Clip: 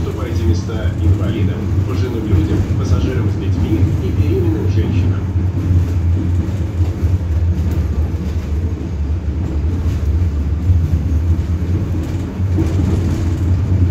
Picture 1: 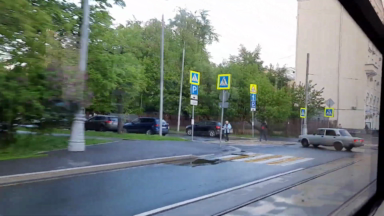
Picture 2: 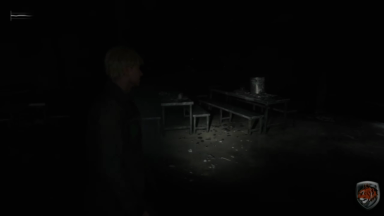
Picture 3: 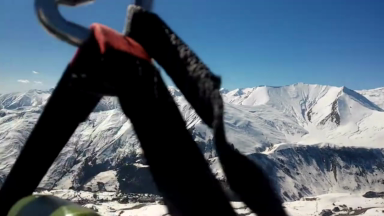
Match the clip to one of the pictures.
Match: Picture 1